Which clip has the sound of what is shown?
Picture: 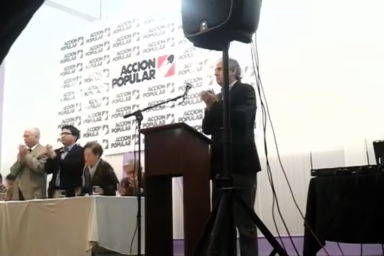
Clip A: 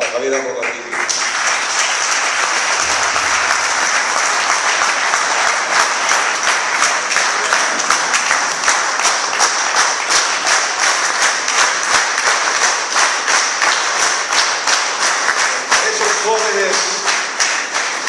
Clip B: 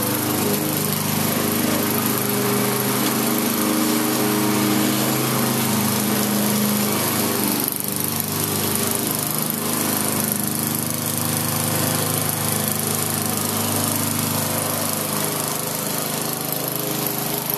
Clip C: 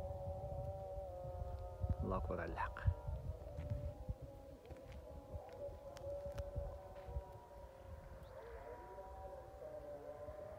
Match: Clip A